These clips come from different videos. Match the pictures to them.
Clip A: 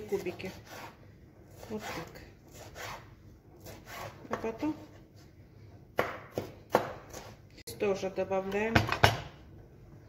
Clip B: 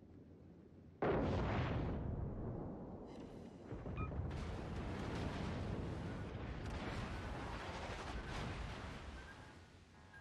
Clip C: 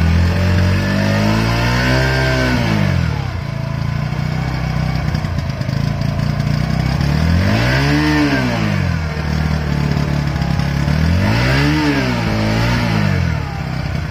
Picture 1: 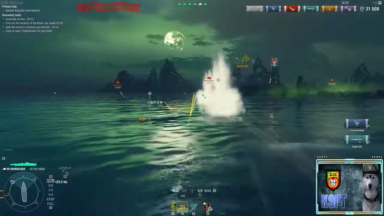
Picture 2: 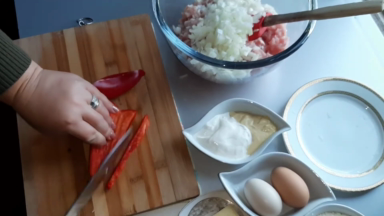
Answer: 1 B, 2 A